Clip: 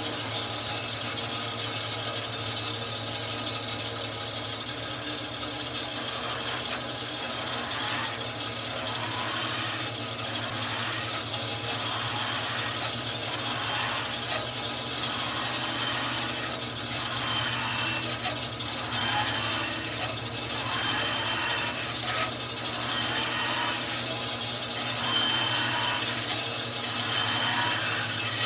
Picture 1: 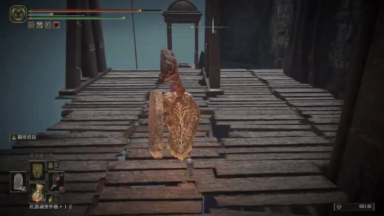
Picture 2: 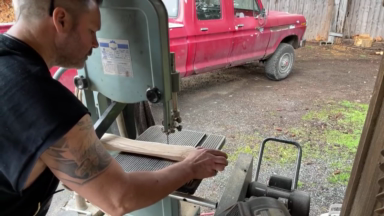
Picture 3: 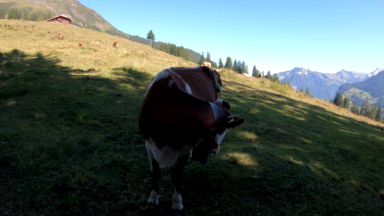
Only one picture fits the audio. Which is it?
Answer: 2